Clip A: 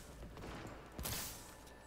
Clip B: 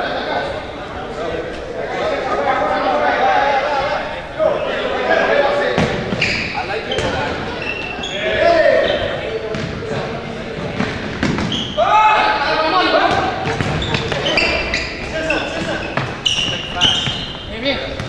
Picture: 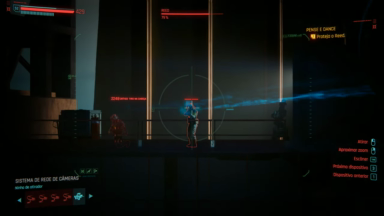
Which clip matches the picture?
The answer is A